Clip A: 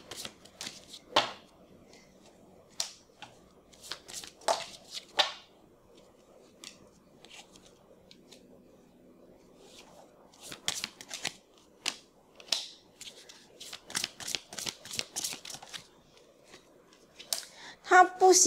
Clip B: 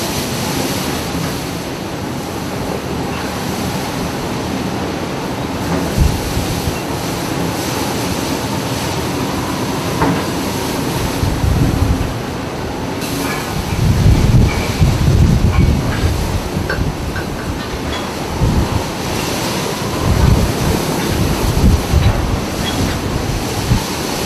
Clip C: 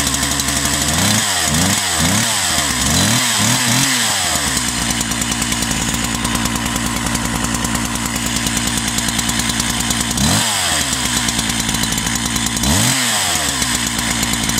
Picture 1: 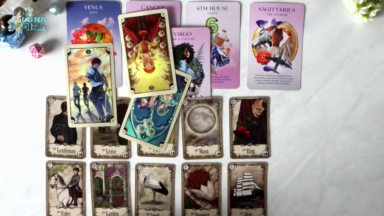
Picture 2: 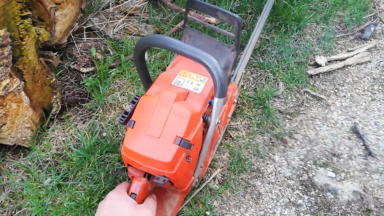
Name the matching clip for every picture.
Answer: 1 A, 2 C